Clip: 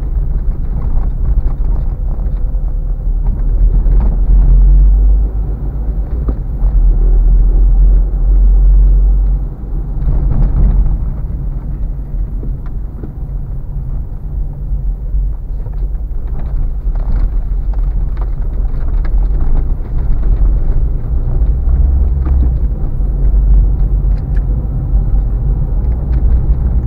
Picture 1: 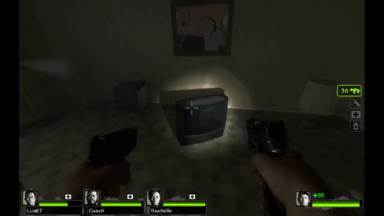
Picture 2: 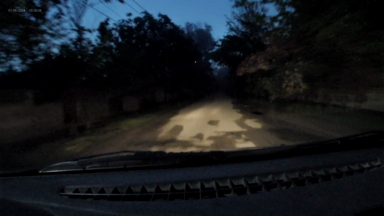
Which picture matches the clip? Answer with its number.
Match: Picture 2